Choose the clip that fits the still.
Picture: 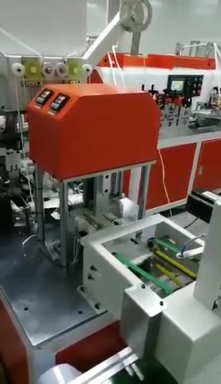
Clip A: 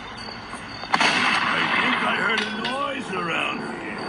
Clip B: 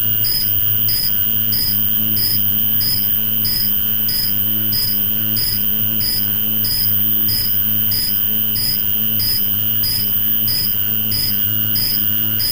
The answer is B